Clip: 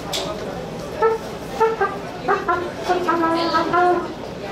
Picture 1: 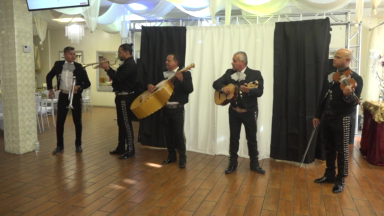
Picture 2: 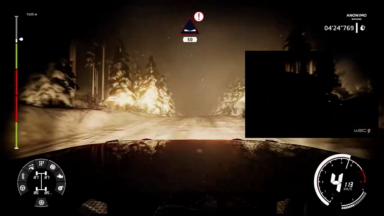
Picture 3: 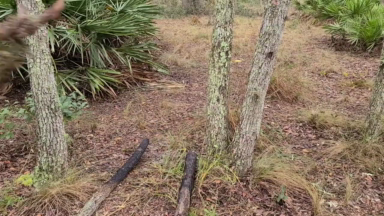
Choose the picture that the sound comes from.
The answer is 1